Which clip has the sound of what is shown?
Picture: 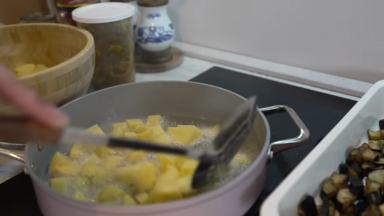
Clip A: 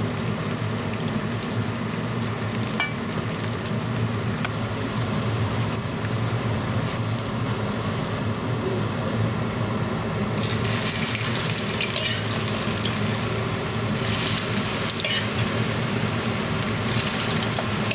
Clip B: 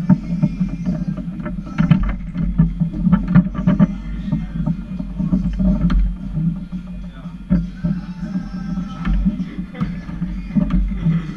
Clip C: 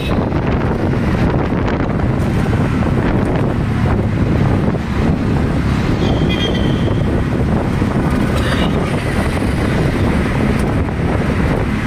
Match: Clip A